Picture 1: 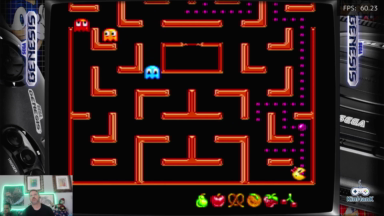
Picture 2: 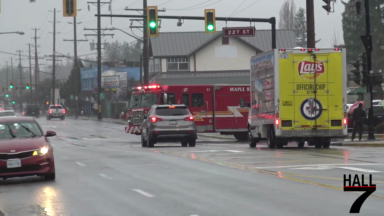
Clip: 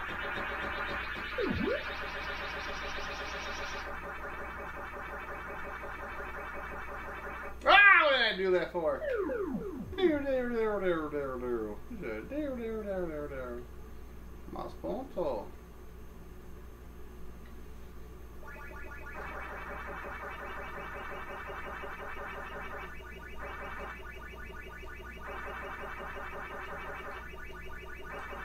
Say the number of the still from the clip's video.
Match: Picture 1